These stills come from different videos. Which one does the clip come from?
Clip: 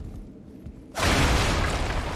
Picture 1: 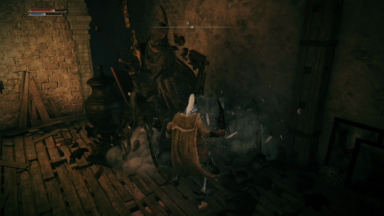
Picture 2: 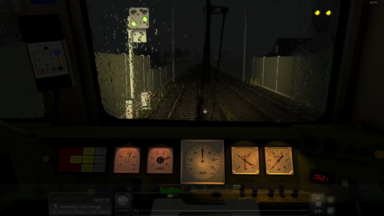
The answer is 1